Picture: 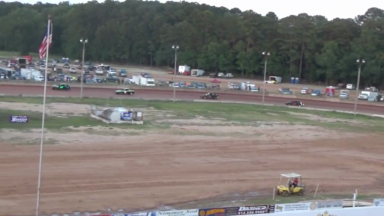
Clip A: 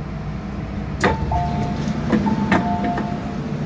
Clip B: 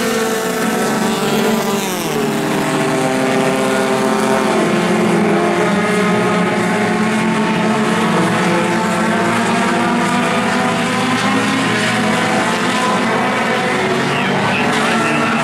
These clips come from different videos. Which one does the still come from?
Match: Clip B